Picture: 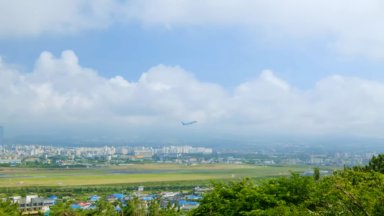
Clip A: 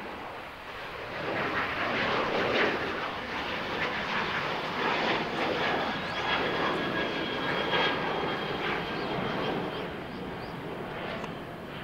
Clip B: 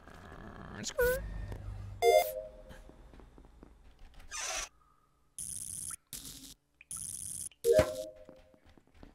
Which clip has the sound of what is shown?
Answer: A